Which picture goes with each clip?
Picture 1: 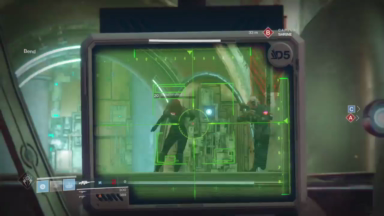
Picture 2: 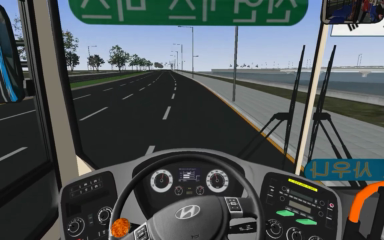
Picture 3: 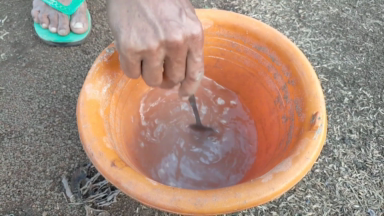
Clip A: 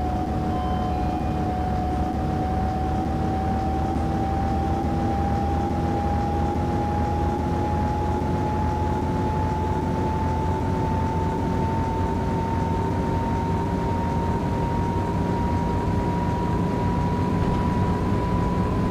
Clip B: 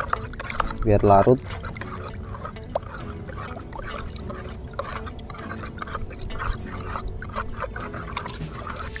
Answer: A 2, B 3